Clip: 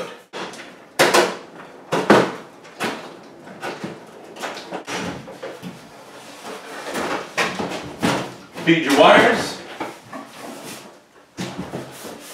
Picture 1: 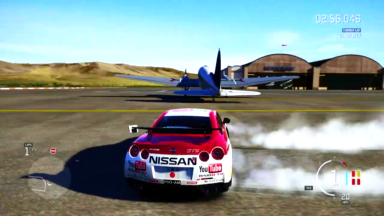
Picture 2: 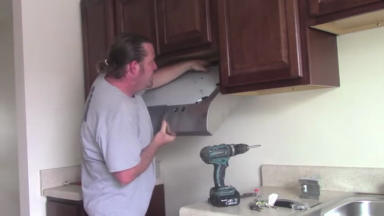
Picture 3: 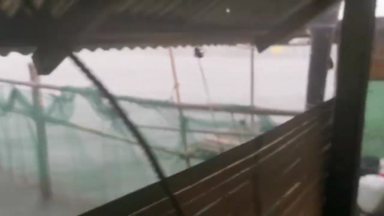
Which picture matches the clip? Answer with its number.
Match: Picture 2